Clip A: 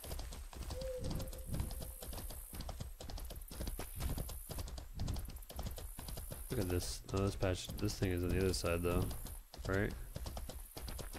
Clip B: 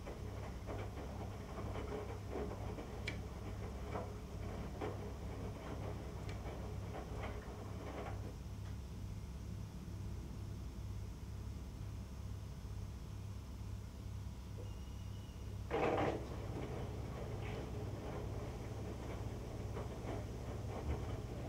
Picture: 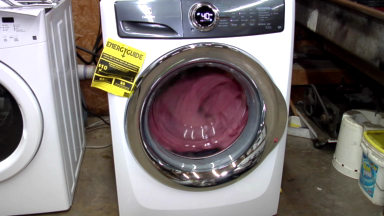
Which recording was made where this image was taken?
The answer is B